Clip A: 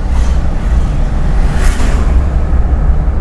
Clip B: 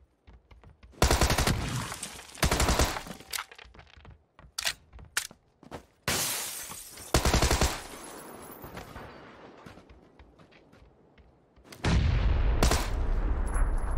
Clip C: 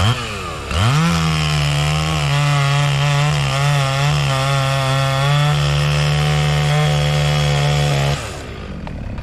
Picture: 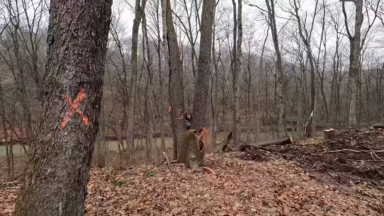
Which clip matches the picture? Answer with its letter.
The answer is C